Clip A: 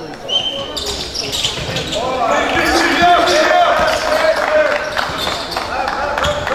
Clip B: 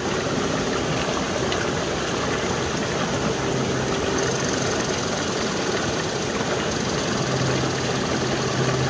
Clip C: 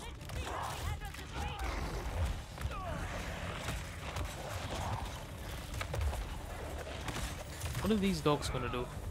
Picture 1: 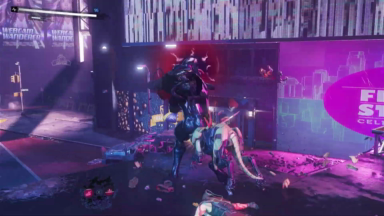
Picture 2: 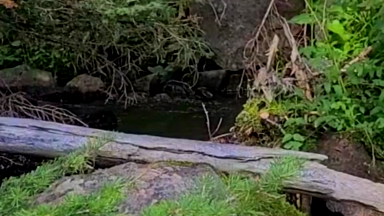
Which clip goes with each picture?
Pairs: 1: C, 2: B